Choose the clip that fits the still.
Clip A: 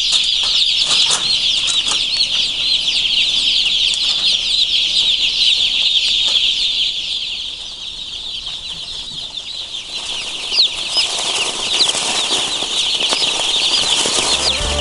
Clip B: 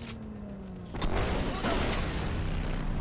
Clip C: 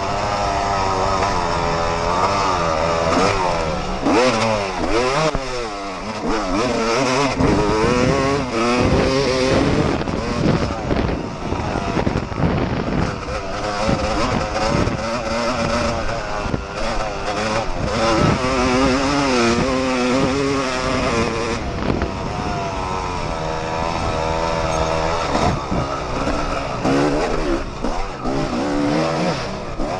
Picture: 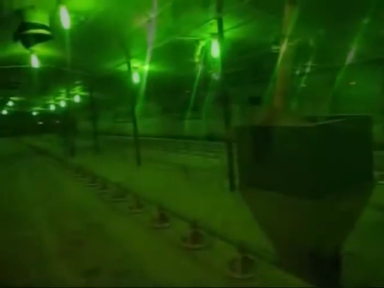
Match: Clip A